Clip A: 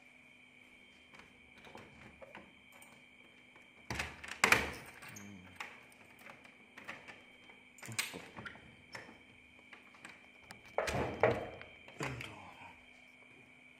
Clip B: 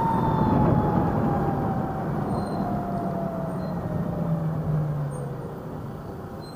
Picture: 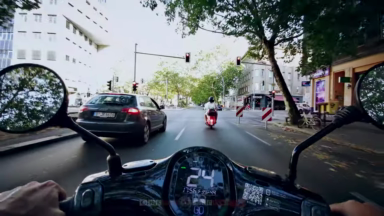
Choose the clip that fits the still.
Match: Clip B